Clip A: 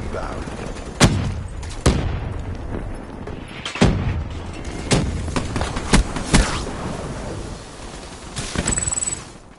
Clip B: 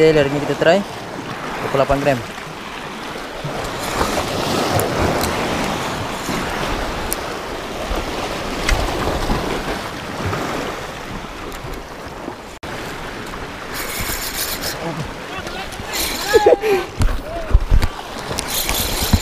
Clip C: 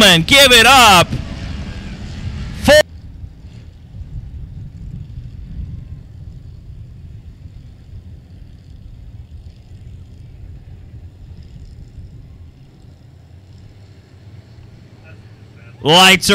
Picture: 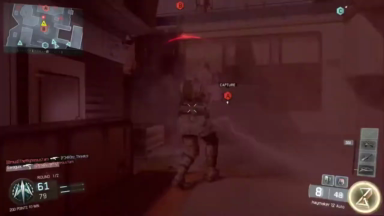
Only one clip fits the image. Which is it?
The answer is A